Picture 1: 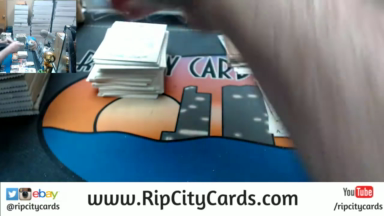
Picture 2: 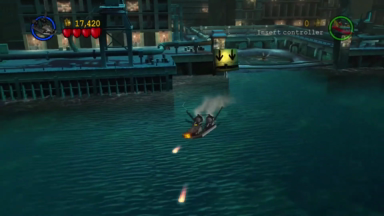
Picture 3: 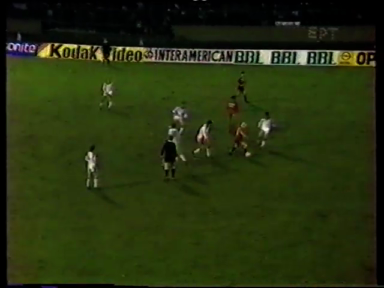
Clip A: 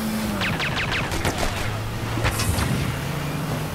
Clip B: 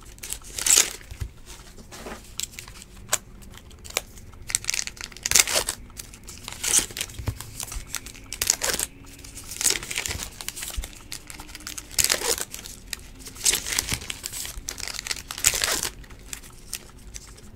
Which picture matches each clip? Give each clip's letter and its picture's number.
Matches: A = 2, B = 1